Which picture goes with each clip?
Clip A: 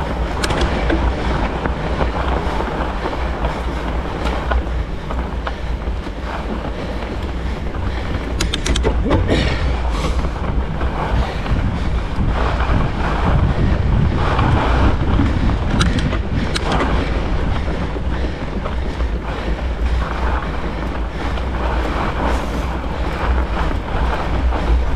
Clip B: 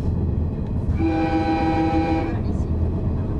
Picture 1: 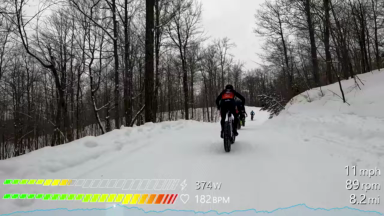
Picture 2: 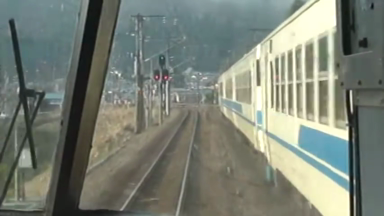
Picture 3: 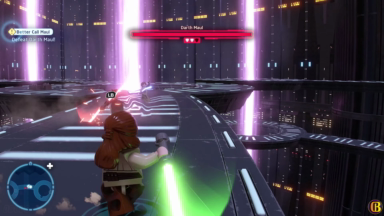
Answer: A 1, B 2